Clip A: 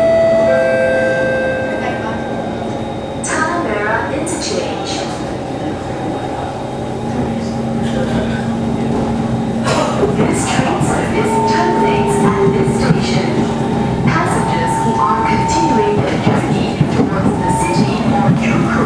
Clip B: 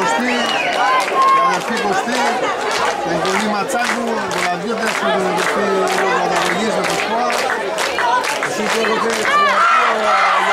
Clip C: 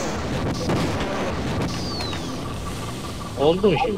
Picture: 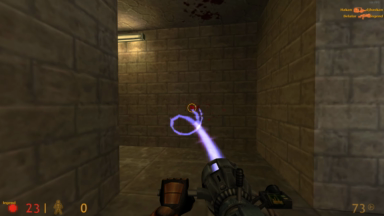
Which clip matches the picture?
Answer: C